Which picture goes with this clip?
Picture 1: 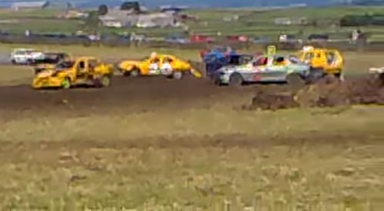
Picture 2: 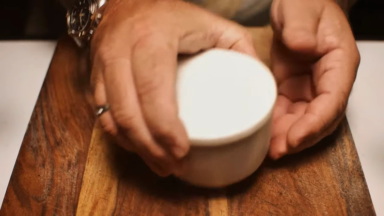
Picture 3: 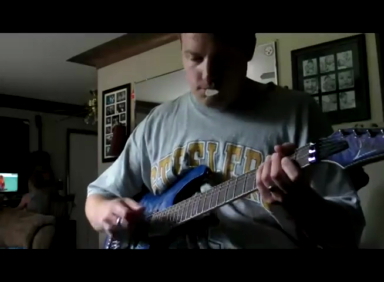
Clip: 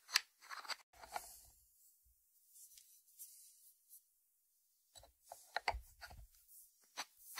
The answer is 2